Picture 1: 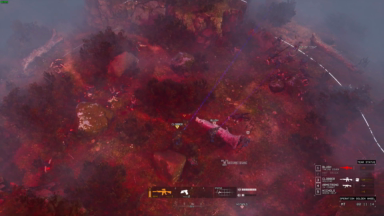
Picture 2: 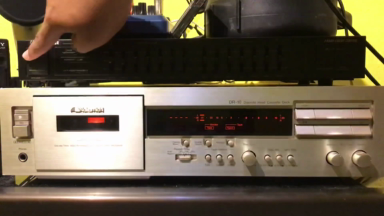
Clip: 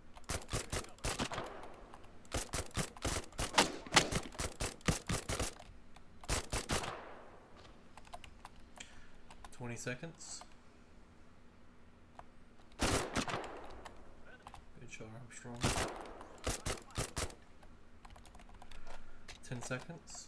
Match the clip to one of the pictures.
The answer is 1